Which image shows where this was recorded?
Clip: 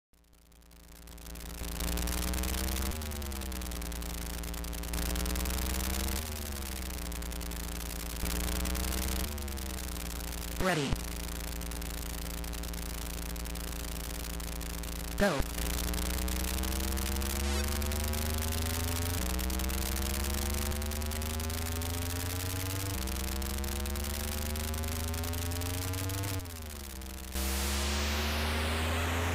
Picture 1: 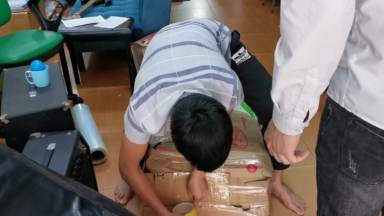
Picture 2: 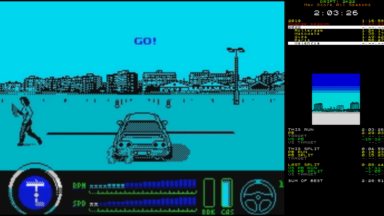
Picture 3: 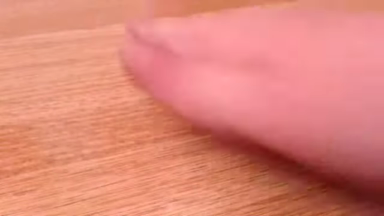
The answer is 2